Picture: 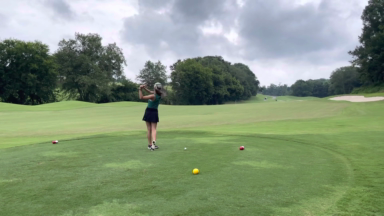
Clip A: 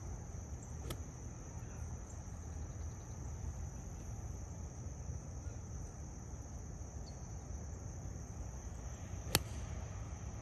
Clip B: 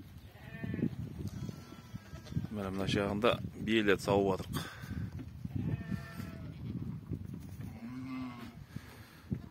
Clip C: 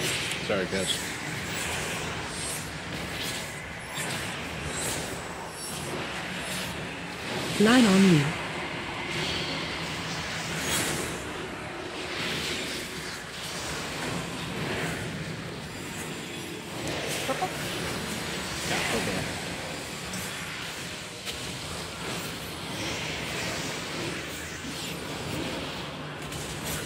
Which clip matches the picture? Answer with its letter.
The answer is A